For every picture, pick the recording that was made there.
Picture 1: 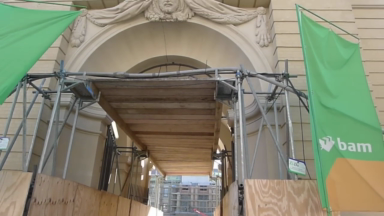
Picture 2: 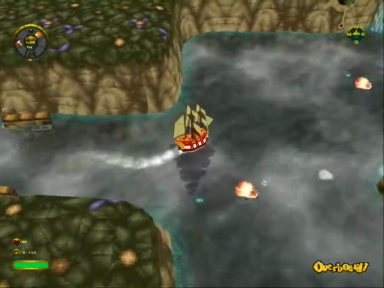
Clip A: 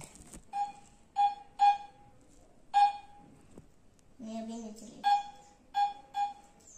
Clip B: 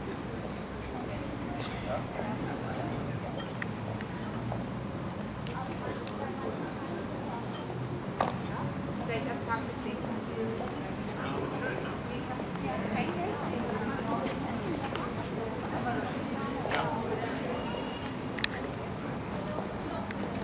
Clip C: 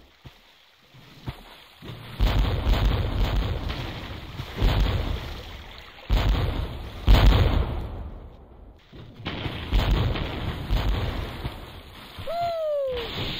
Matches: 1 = B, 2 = C